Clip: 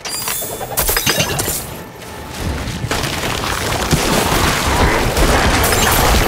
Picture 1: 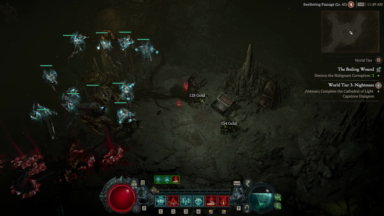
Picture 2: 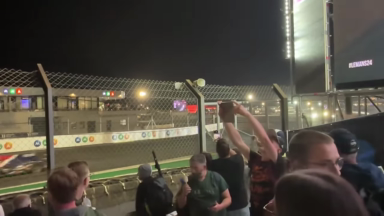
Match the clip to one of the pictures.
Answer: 1